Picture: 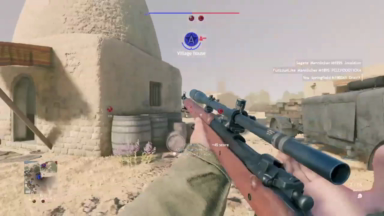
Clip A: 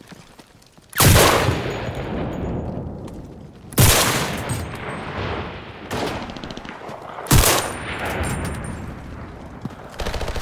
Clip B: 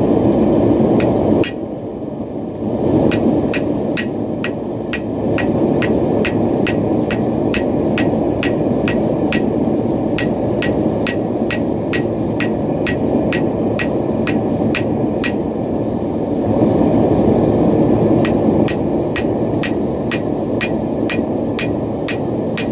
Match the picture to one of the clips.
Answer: A